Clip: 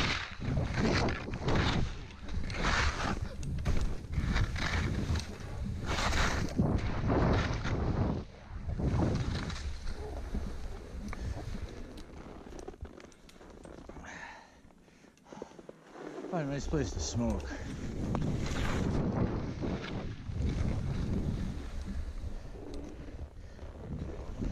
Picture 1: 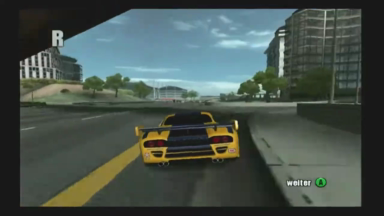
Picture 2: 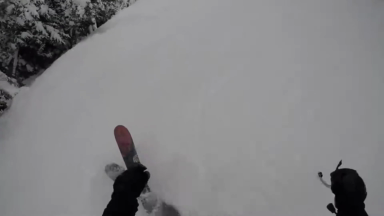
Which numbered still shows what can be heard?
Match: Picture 2